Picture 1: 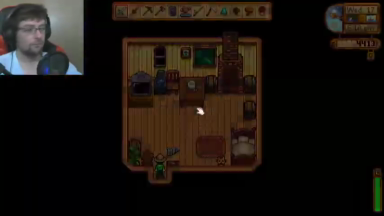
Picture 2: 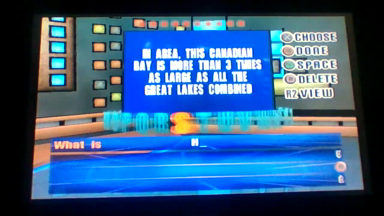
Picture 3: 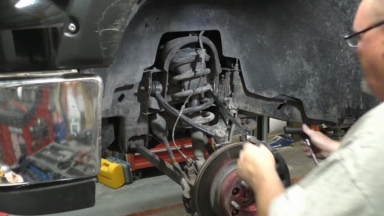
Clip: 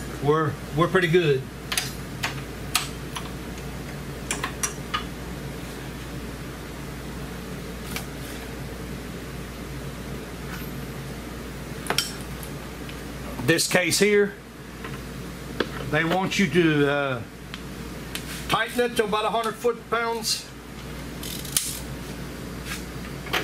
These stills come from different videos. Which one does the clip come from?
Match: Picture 3